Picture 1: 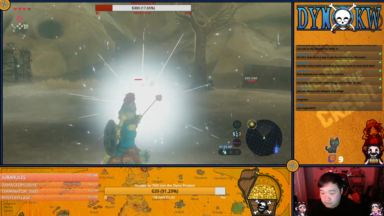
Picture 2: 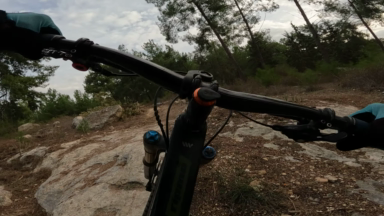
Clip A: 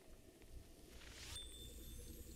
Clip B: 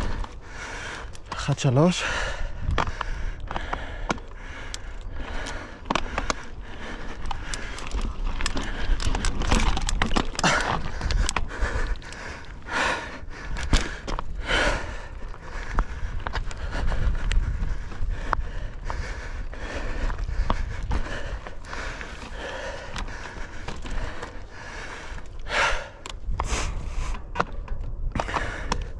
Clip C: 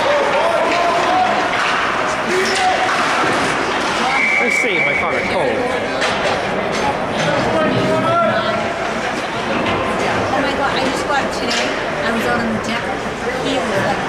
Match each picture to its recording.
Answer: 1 A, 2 B